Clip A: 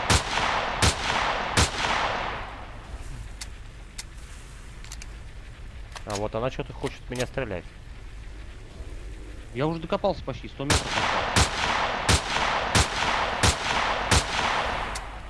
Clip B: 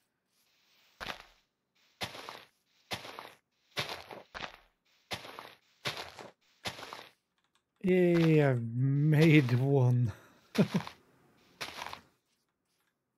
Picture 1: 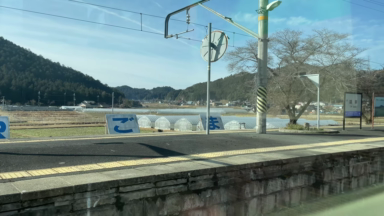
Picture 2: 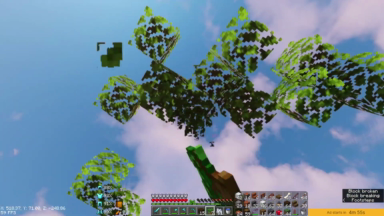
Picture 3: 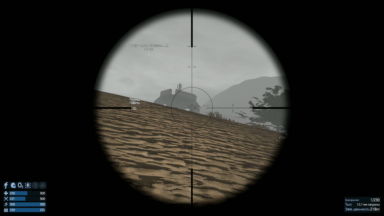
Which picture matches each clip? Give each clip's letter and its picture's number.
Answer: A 3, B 2